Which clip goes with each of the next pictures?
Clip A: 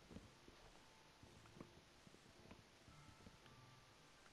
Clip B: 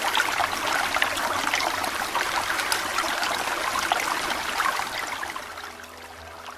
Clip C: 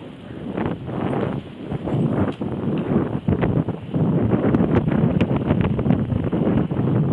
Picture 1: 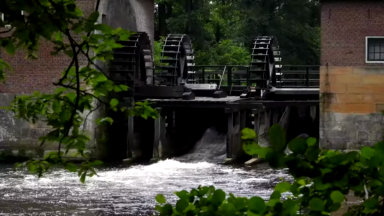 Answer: B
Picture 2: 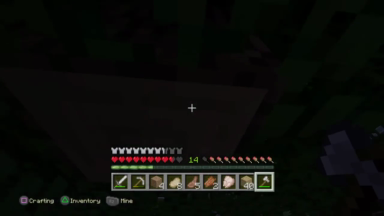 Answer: A